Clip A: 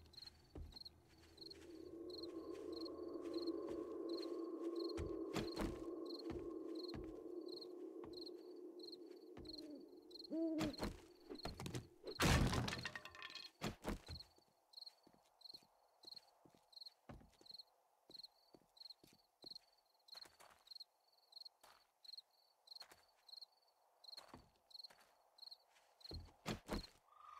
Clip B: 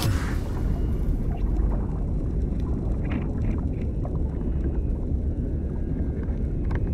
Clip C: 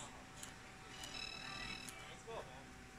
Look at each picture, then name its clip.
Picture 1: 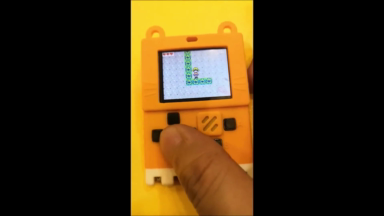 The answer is C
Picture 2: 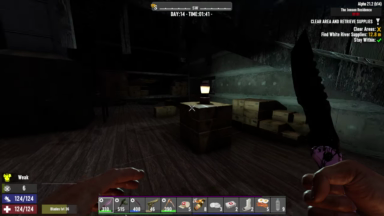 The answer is A